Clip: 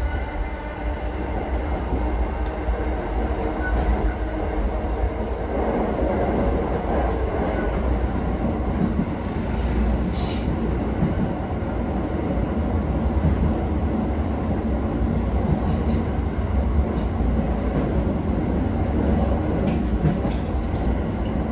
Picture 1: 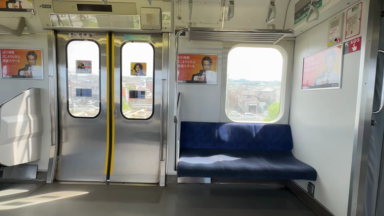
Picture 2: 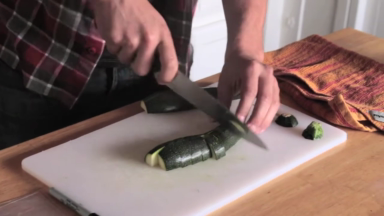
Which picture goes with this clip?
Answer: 1